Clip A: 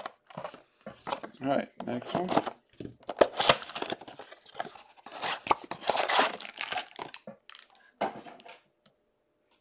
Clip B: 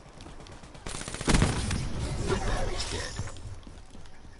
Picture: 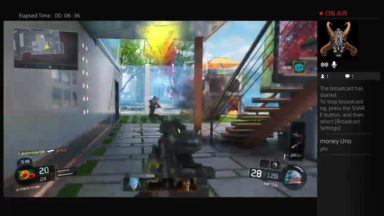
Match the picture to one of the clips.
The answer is B